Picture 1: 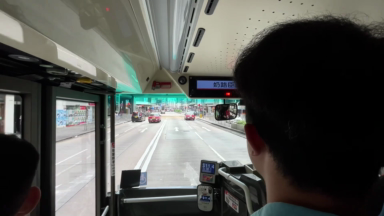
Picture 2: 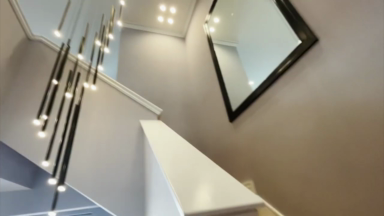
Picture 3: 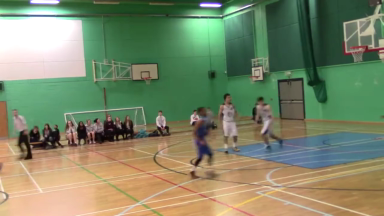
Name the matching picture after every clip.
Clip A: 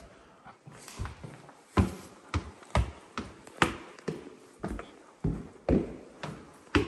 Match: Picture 2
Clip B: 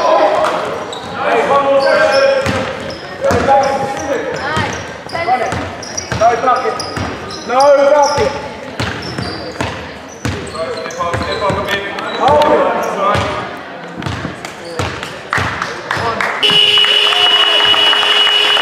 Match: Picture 3